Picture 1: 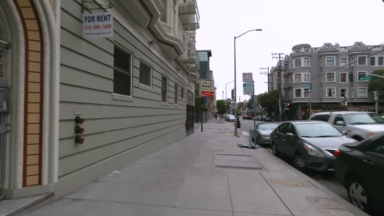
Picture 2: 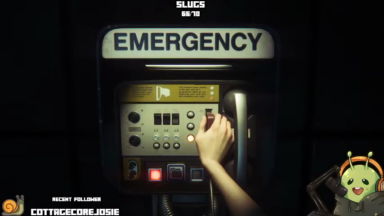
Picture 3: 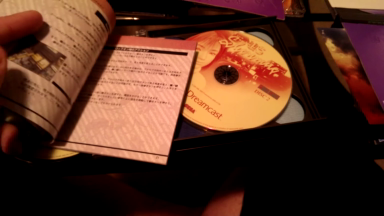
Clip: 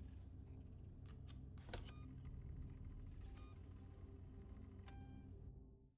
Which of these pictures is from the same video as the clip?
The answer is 2